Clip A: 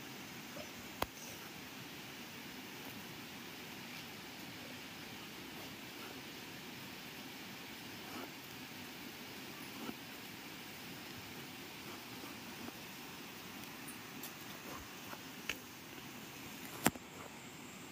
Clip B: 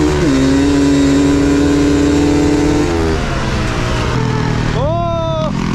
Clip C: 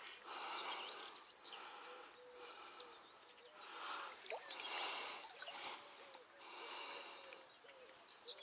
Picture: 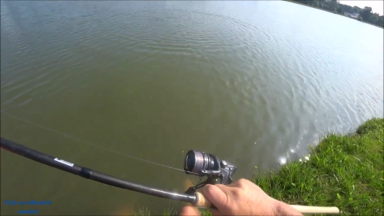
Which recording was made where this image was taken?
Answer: C